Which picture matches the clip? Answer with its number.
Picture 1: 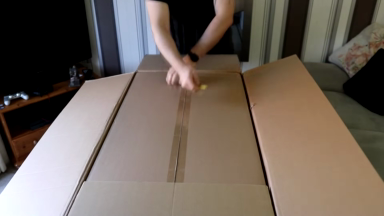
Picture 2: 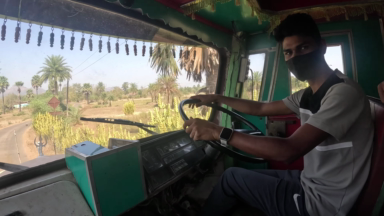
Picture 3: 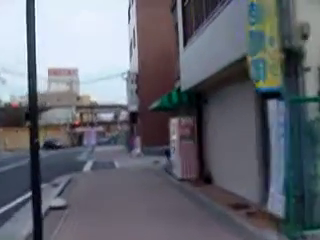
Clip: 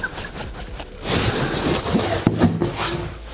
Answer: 1